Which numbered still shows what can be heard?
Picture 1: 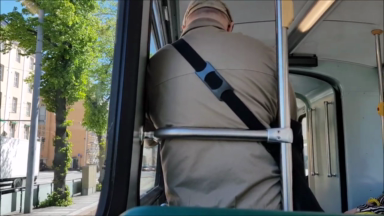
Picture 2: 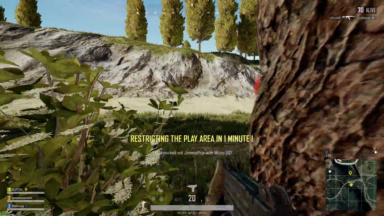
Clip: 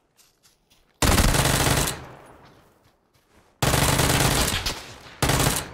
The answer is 2